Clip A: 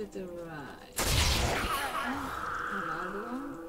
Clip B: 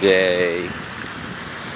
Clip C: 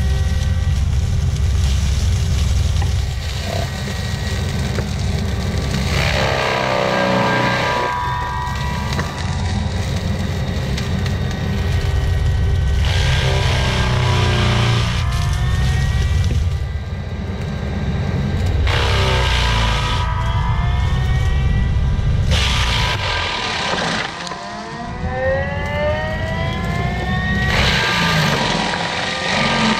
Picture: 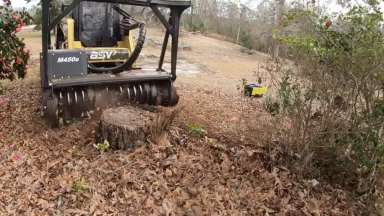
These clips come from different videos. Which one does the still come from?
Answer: C